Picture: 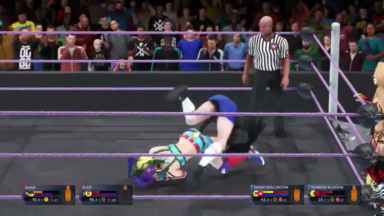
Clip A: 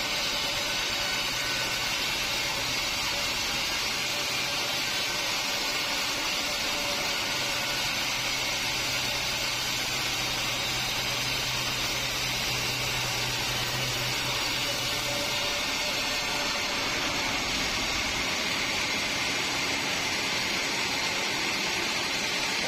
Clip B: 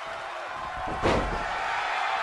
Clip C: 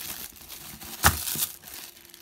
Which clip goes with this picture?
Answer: B